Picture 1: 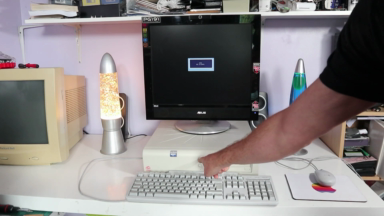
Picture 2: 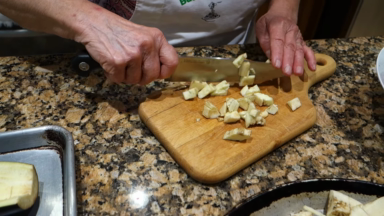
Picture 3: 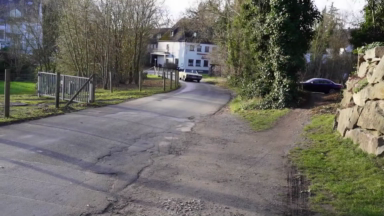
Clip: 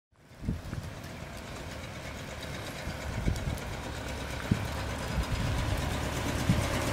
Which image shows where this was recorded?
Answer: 3